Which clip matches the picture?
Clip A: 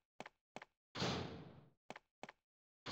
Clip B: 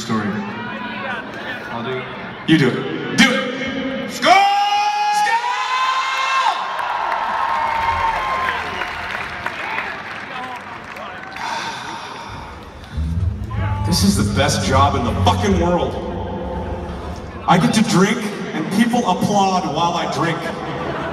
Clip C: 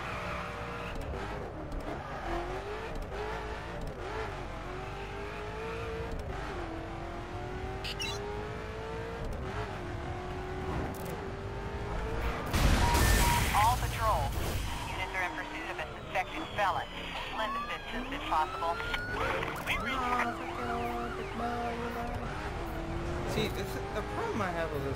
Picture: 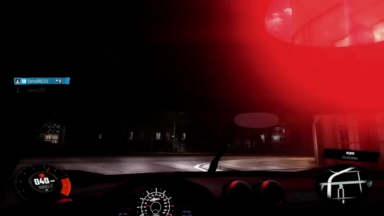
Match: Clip C